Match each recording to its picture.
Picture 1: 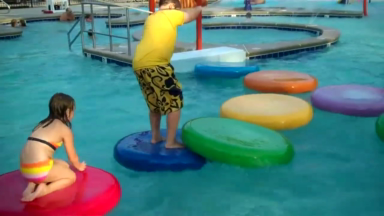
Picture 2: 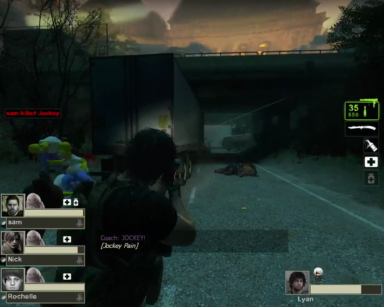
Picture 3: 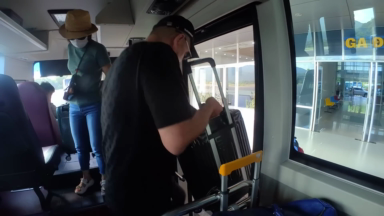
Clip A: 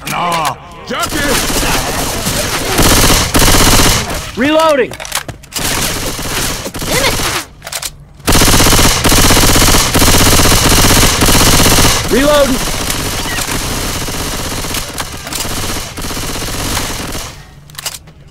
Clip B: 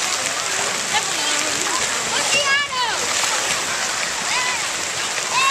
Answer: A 2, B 1